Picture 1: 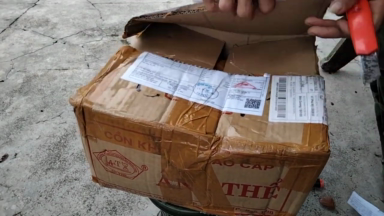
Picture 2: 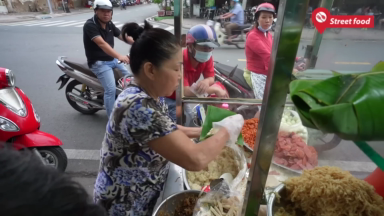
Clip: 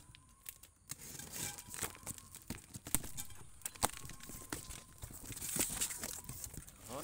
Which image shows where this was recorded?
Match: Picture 1